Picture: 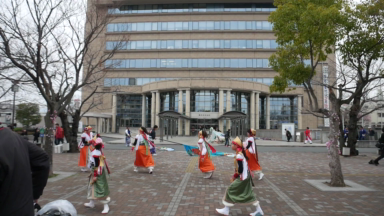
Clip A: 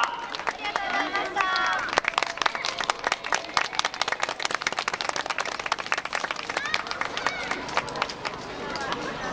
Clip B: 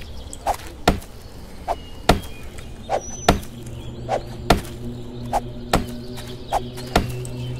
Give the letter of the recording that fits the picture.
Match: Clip A